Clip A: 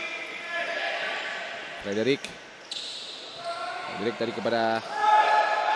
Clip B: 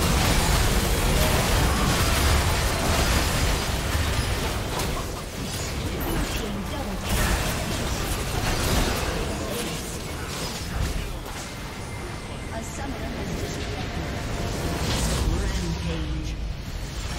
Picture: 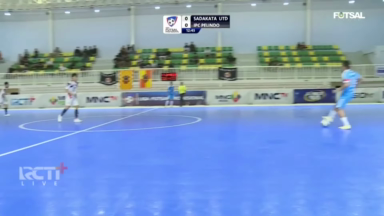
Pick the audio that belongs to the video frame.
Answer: A